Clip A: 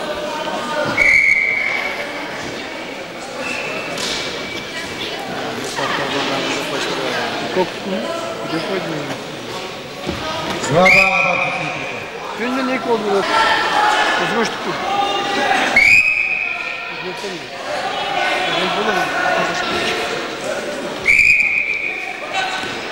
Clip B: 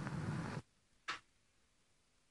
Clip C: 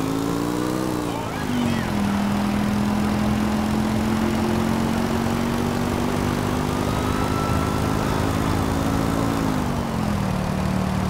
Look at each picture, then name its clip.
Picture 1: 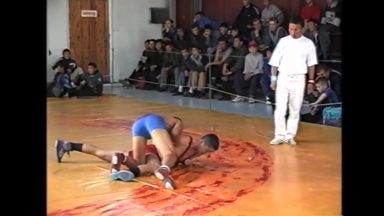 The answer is A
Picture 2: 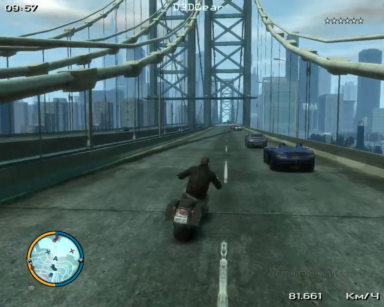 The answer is C